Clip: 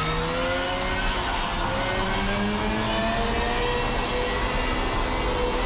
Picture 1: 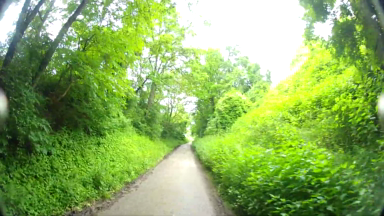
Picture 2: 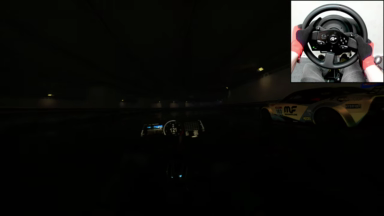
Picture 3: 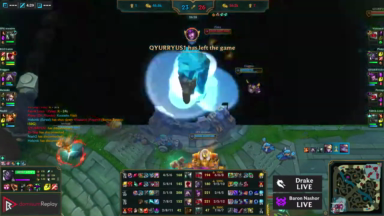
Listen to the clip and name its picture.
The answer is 2